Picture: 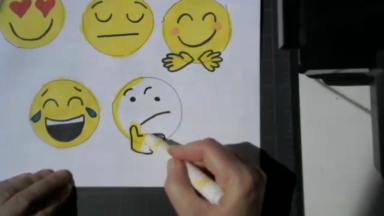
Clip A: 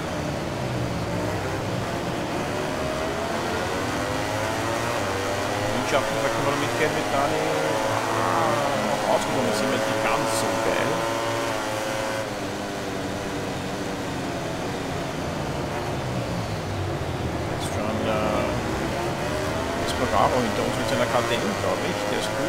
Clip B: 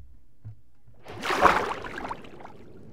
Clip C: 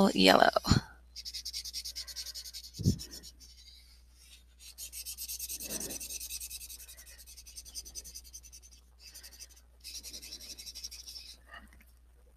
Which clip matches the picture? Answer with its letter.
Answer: C